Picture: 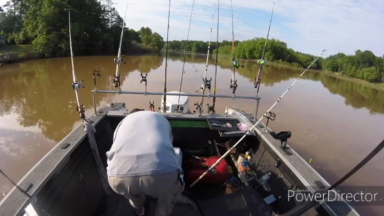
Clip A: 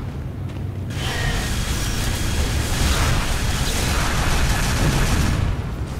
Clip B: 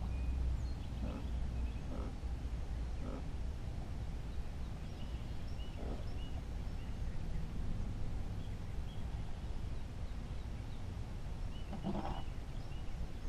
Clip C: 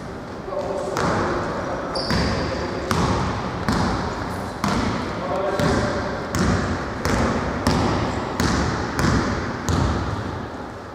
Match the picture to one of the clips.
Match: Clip B